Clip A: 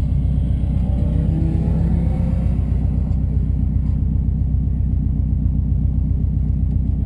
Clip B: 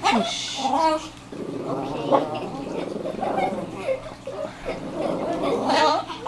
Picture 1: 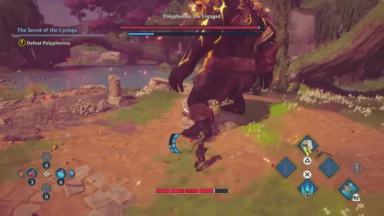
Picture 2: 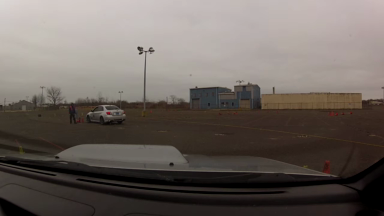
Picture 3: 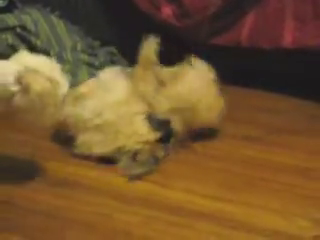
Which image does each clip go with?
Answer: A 2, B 3